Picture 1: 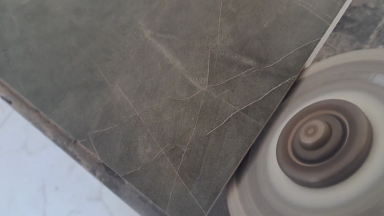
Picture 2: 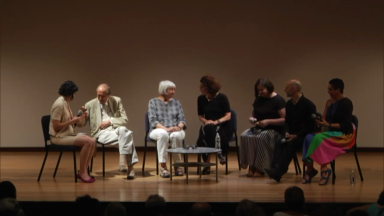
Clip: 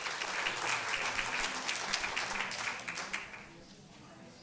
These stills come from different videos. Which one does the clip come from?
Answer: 2